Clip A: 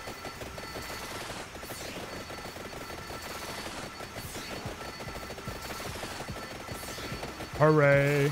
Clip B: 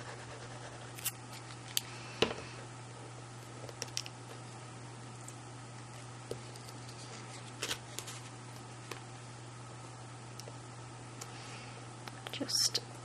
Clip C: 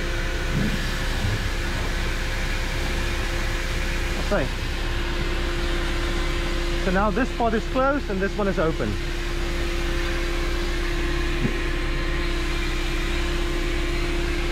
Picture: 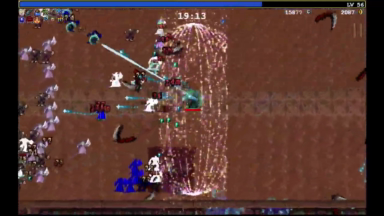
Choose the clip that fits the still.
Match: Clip A